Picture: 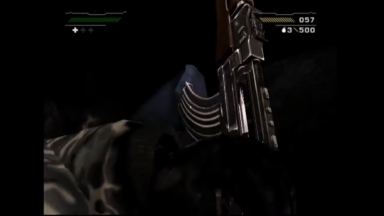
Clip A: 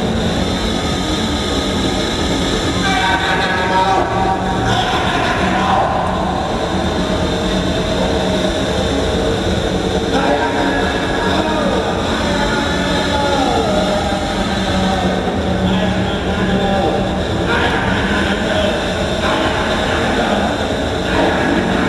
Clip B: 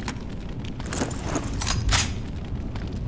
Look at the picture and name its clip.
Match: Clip B